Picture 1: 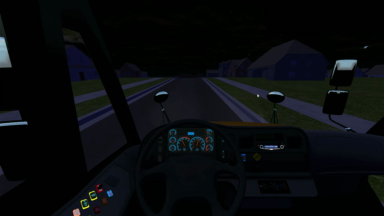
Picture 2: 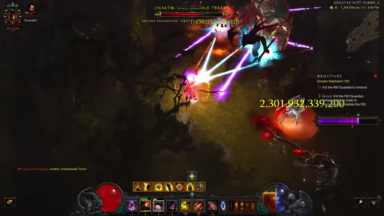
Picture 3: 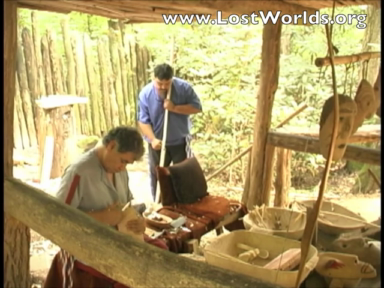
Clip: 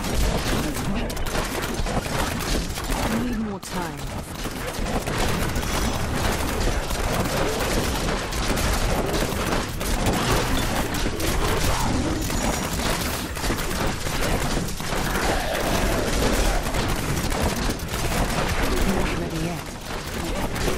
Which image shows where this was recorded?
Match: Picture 2